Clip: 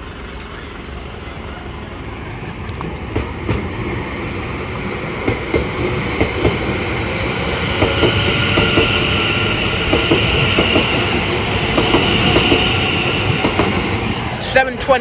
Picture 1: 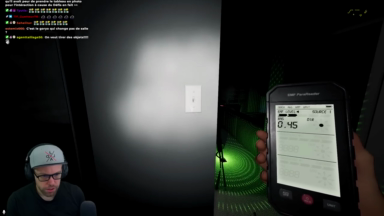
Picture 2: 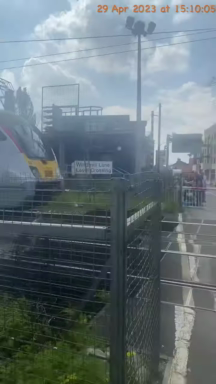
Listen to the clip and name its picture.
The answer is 2